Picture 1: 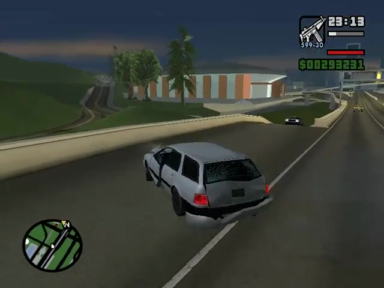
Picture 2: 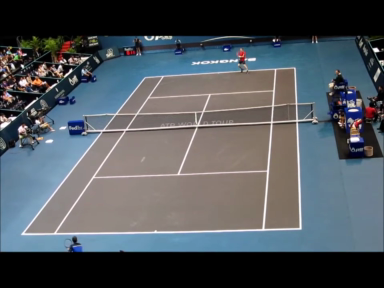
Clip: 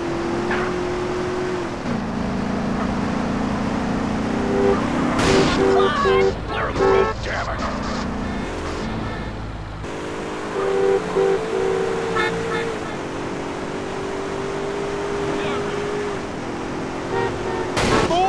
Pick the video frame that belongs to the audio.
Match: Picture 1